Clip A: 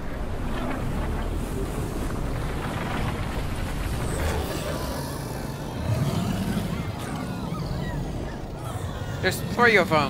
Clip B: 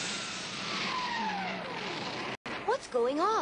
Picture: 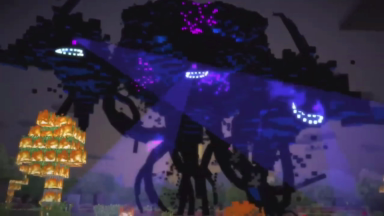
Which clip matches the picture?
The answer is A